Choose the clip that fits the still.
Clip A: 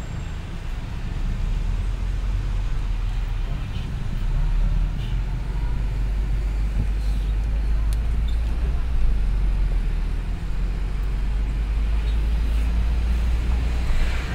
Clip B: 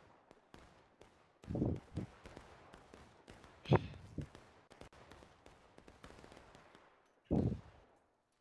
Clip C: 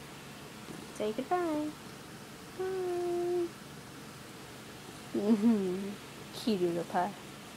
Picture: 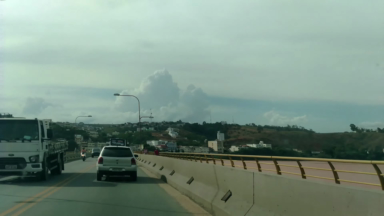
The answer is A